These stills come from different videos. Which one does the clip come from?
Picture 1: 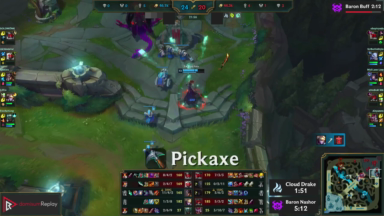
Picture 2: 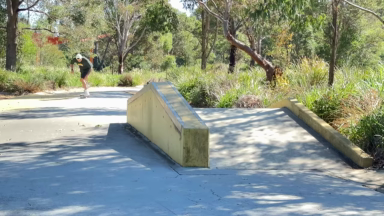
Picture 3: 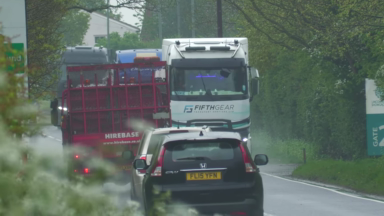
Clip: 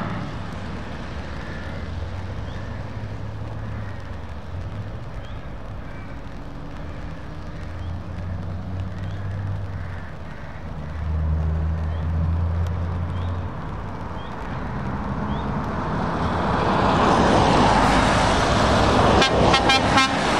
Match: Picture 3